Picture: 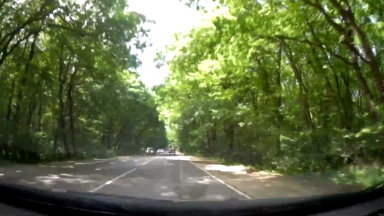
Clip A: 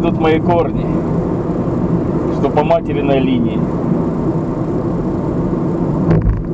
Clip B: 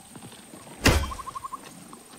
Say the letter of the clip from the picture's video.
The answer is A